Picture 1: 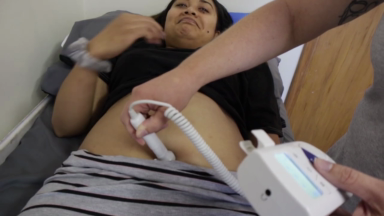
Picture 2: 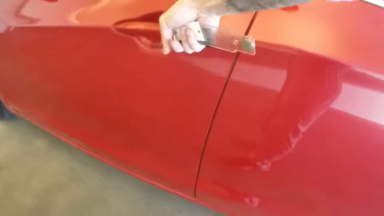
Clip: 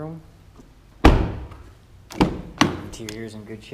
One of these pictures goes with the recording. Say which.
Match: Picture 2